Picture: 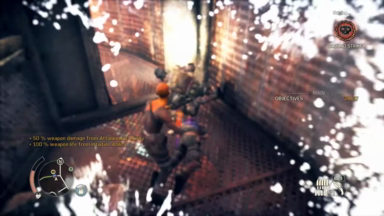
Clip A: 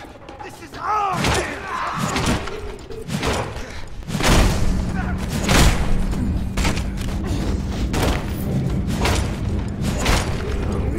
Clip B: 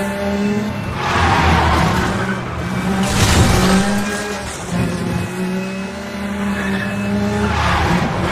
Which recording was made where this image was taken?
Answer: A